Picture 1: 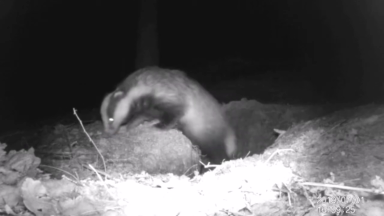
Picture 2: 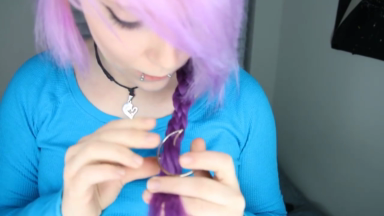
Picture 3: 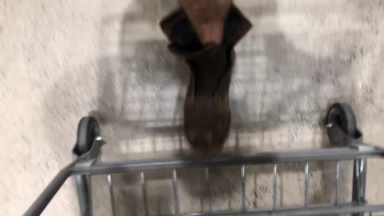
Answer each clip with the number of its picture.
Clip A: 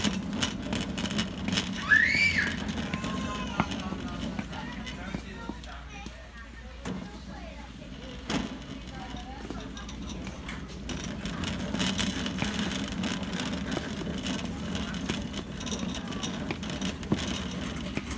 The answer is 3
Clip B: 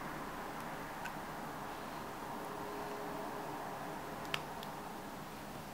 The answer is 2